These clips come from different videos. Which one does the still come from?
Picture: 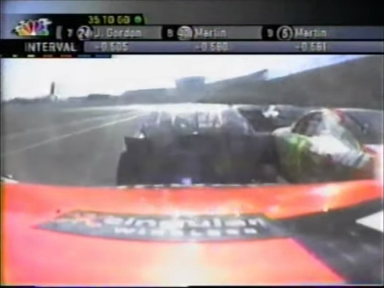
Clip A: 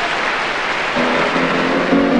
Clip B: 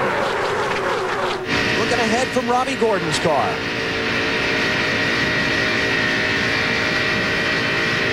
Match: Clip B